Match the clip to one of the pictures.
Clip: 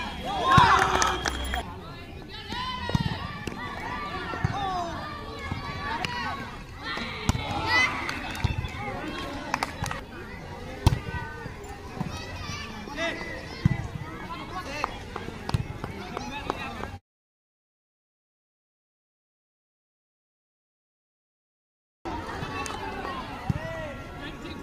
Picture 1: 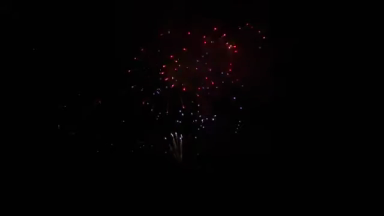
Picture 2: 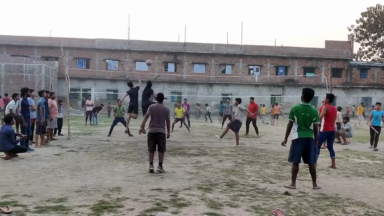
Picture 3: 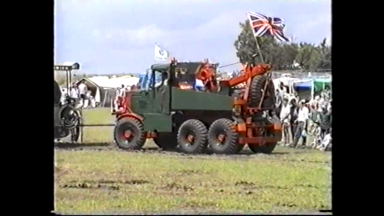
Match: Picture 2